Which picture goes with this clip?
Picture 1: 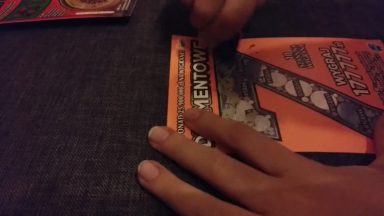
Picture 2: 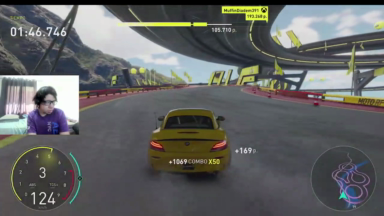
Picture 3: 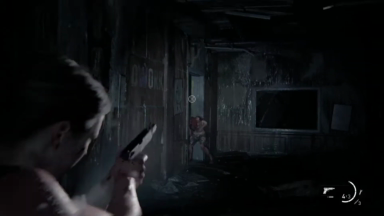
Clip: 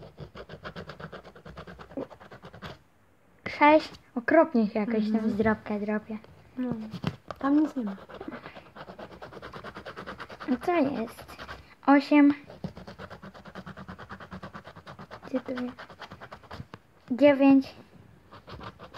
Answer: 1